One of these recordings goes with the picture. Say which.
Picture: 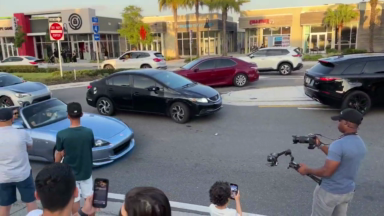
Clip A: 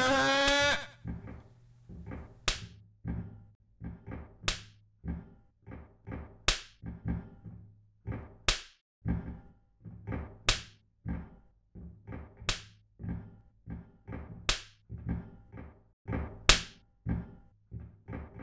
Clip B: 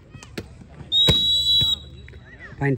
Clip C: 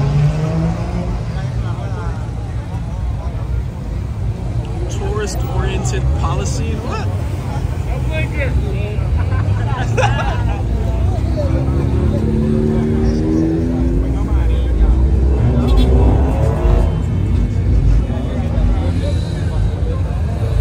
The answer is C